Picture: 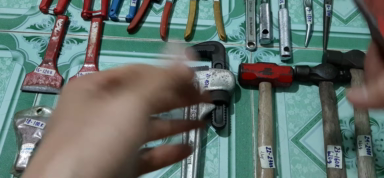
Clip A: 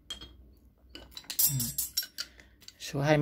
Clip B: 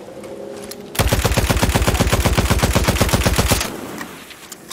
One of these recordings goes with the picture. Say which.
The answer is A